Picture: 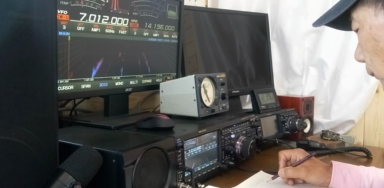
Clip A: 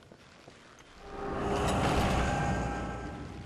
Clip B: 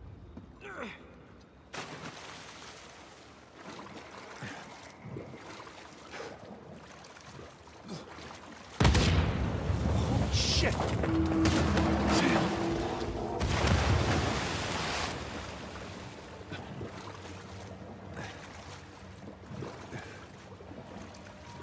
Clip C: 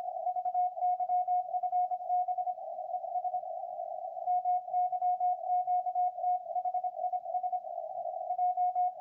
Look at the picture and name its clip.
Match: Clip C